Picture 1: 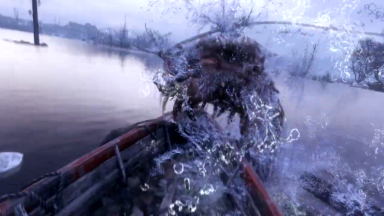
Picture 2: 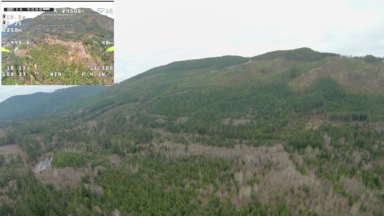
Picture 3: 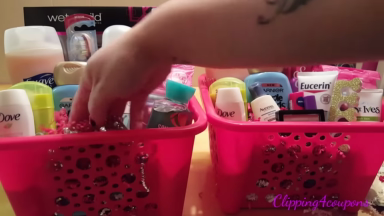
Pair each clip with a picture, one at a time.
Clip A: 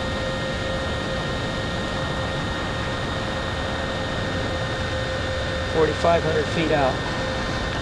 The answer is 2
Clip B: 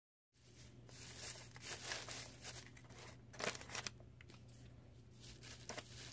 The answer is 3